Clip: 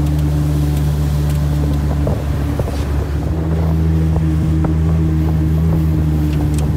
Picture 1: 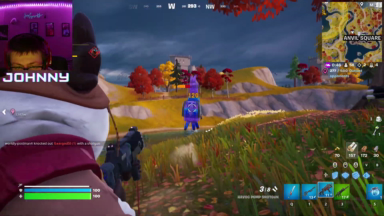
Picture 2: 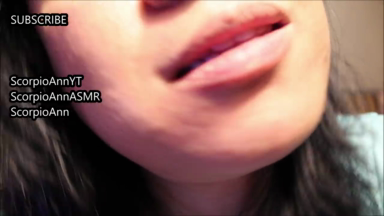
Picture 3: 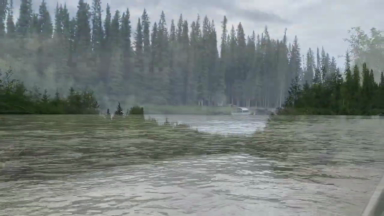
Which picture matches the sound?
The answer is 3